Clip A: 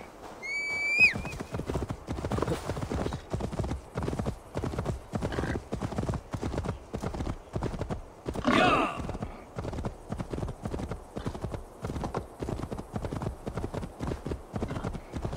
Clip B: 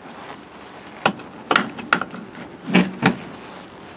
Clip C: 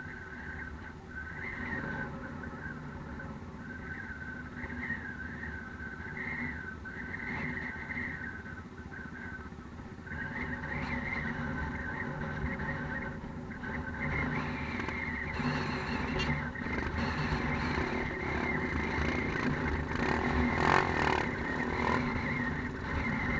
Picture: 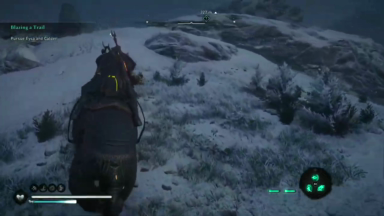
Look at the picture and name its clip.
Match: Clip A